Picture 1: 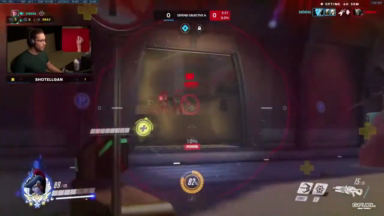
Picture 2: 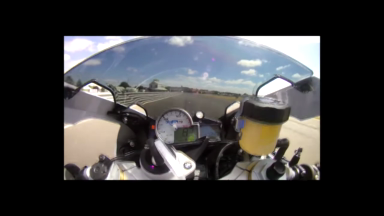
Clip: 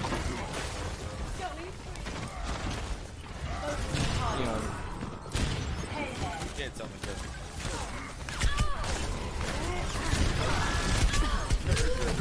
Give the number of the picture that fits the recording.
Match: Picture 1